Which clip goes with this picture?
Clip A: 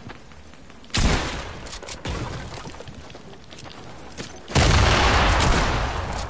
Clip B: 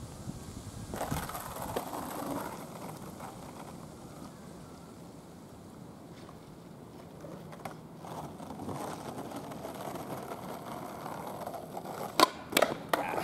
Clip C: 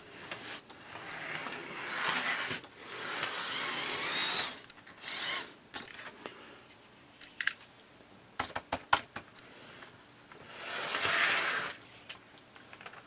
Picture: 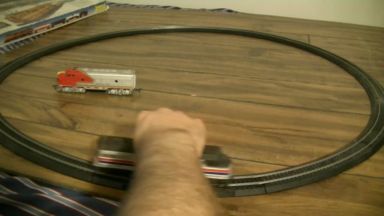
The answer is C